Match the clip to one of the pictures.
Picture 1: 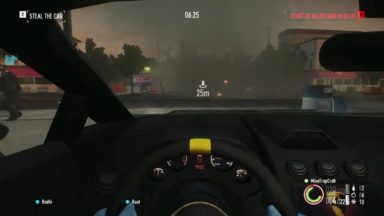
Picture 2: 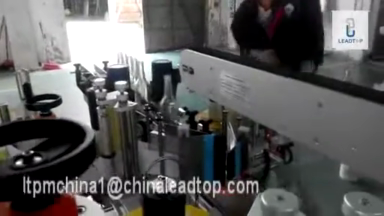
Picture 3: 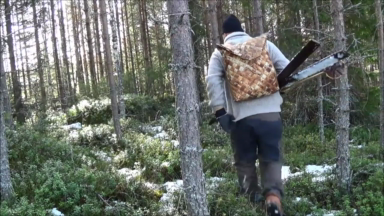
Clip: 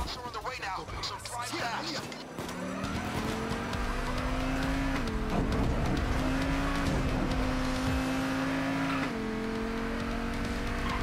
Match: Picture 1